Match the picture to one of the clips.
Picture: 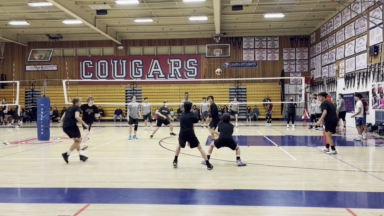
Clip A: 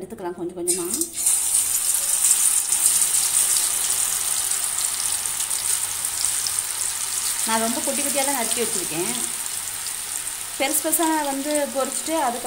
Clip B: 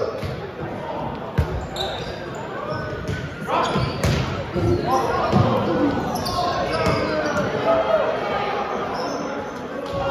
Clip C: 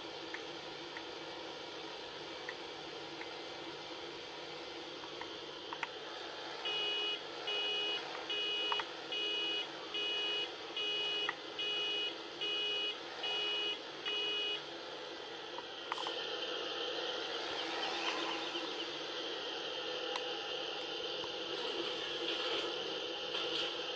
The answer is B